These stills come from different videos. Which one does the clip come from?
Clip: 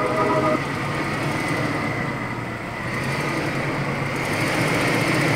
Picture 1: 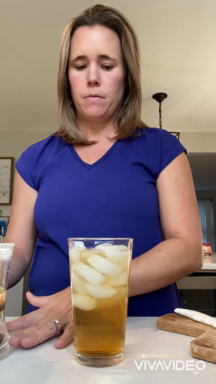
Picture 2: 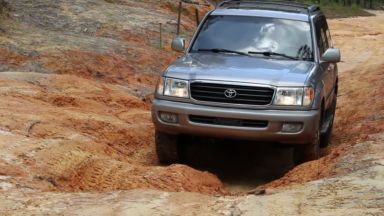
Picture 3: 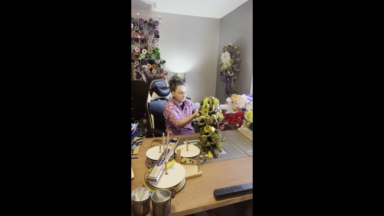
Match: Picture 2